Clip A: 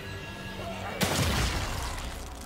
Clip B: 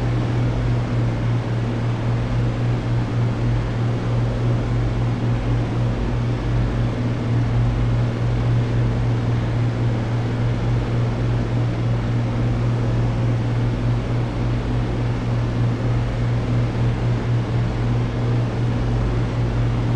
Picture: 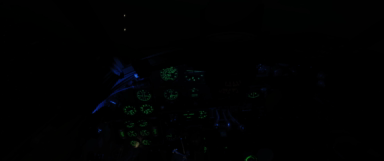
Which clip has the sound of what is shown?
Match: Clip B